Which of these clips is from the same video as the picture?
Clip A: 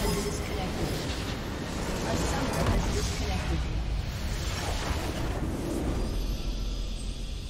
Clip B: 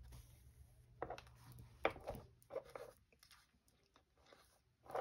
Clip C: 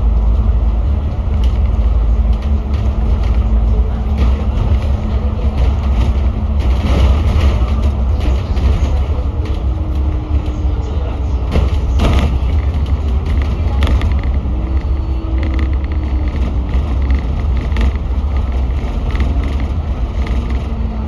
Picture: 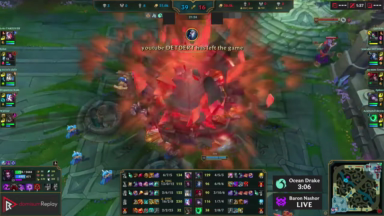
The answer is A